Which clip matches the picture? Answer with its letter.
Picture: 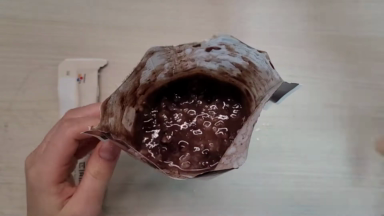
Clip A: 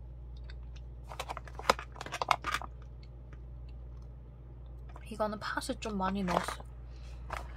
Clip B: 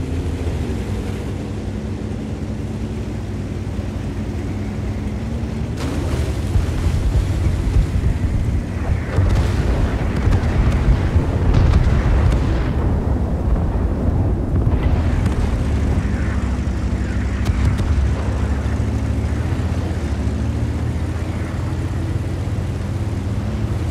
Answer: A